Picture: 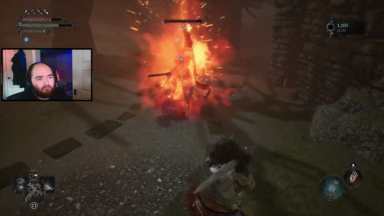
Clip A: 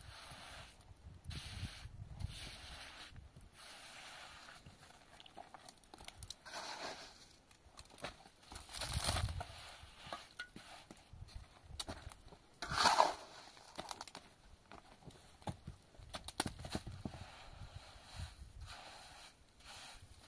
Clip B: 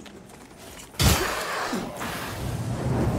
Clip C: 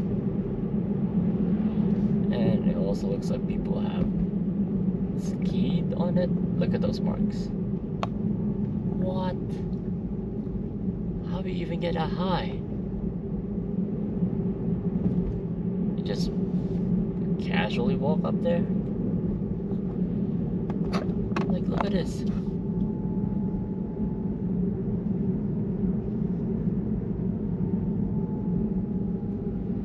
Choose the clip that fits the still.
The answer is B